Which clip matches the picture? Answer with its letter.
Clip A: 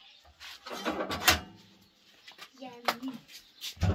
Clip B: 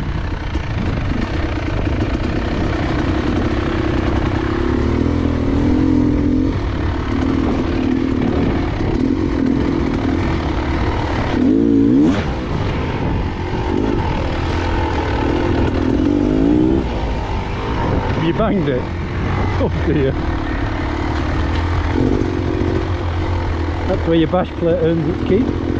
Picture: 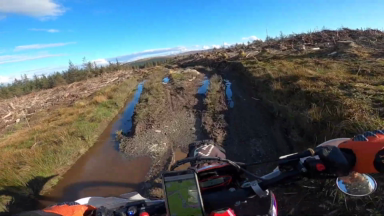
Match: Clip B